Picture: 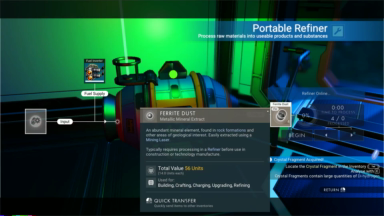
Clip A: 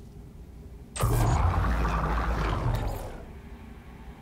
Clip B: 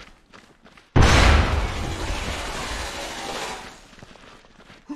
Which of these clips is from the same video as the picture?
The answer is A